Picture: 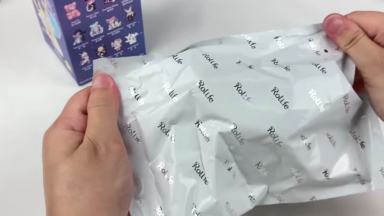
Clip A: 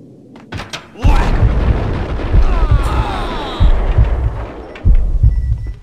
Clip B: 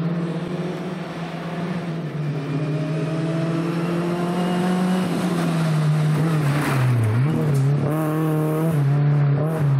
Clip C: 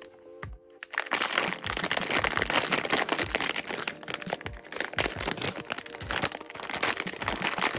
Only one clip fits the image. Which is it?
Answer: C